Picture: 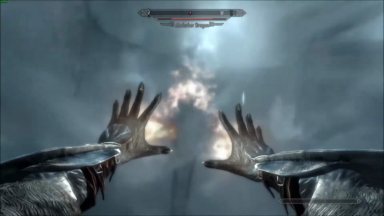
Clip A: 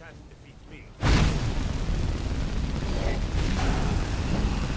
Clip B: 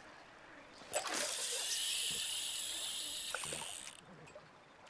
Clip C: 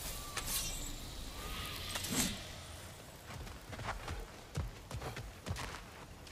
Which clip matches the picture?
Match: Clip A